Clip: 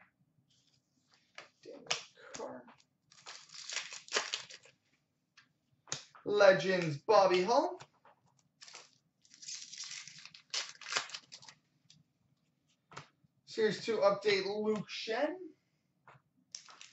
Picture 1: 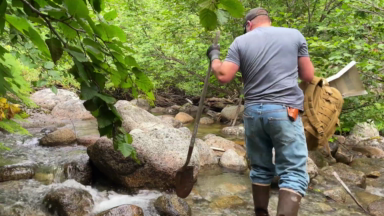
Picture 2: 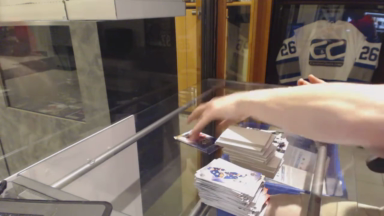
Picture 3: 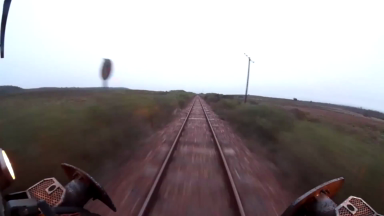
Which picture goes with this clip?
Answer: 2